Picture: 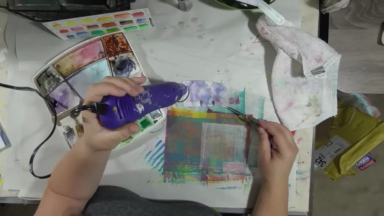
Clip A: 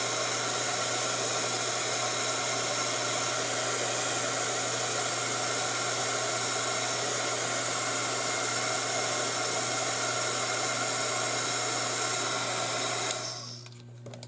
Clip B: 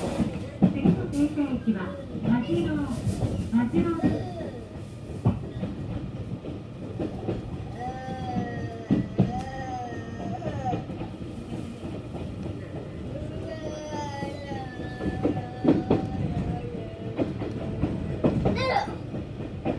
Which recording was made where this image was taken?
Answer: A